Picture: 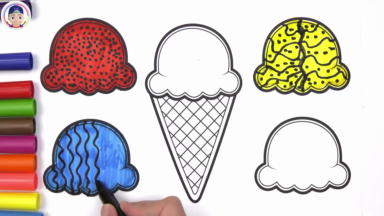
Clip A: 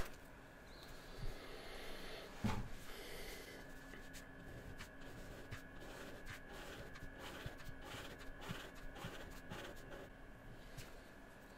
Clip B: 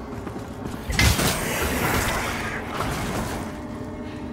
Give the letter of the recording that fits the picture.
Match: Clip A